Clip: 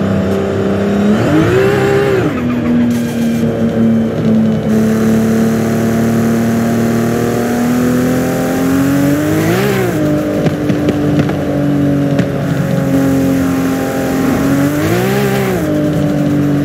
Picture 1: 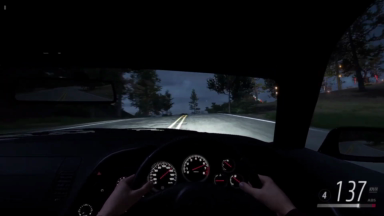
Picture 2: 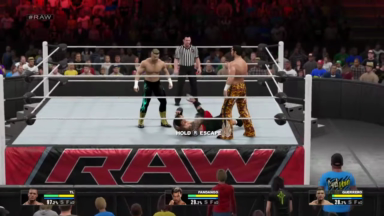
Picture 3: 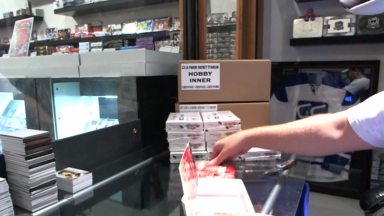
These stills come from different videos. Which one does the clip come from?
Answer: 1